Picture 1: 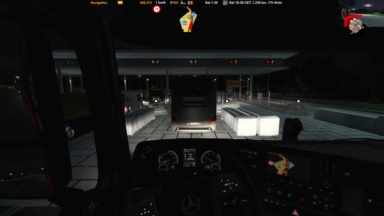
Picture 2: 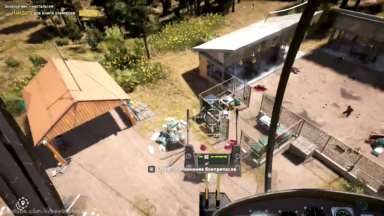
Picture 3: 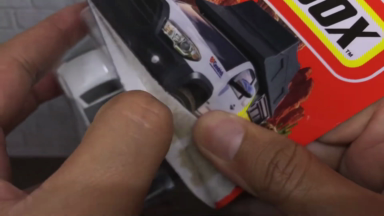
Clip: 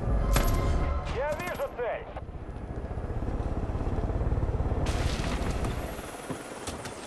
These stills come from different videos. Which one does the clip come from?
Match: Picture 2